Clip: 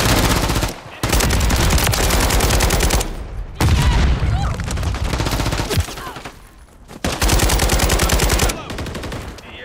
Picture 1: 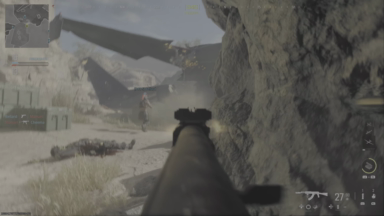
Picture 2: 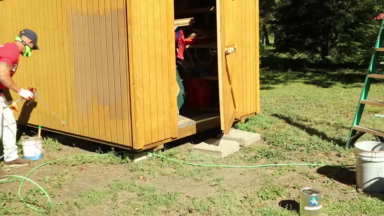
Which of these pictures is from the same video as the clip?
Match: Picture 1